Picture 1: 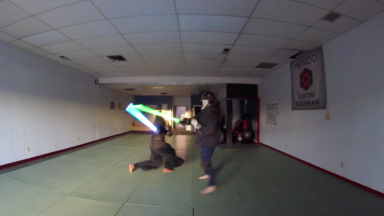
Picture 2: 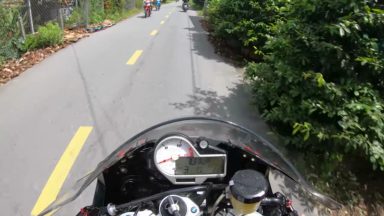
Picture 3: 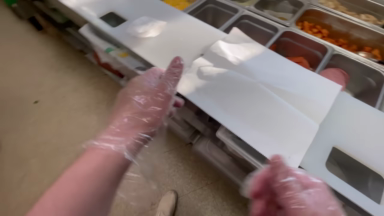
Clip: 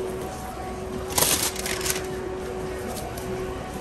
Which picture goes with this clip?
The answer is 3